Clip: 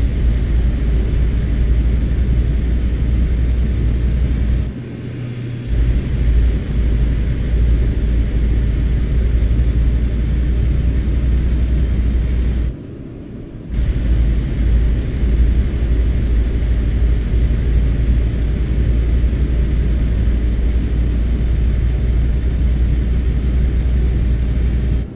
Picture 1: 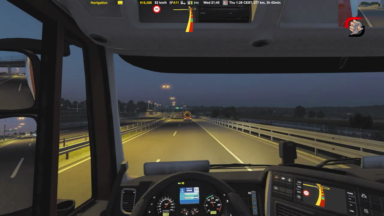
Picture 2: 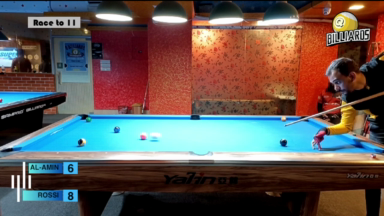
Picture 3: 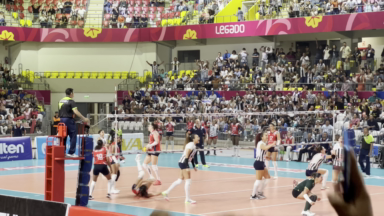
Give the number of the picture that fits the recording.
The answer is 1